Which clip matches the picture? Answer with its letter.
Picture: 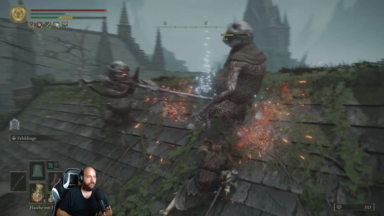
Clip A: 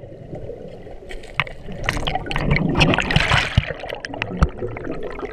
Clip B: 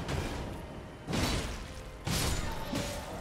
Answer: B